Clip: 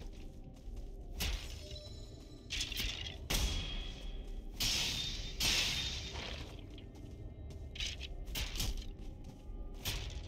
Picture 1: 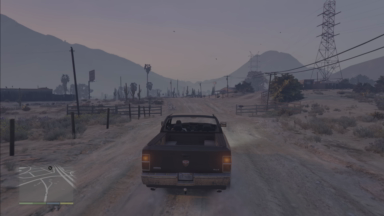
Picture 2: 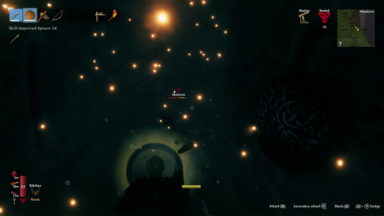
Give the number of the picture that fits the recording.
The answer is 2